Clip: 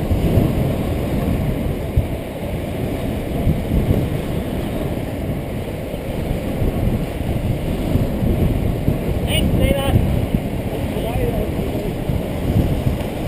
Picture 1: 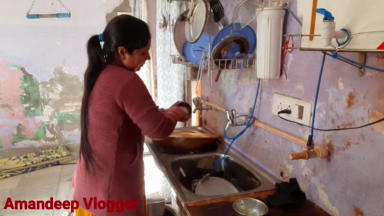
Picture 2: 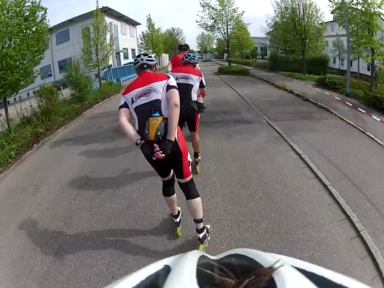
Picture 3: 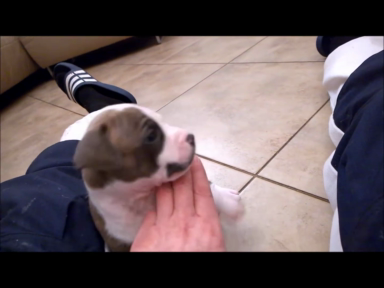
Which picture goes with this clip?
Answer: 2